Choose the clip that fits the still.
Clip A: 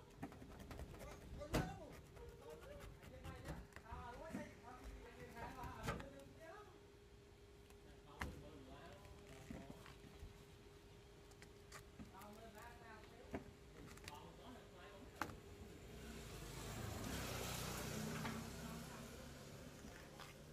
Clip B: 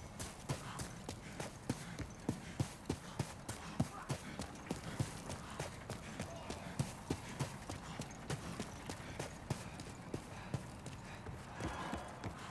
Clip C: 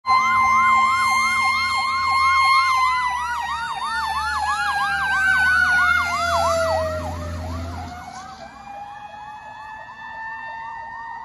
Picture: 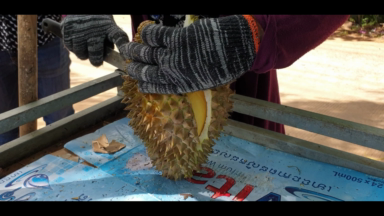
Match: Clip A